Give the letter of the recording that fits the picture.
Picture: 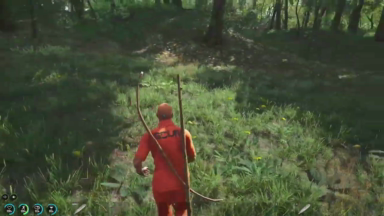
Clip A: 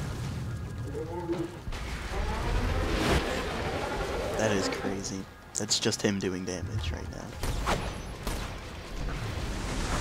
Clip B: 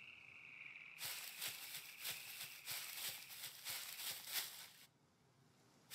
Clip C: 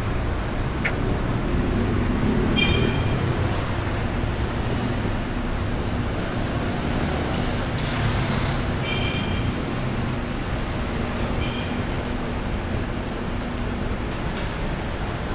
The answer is B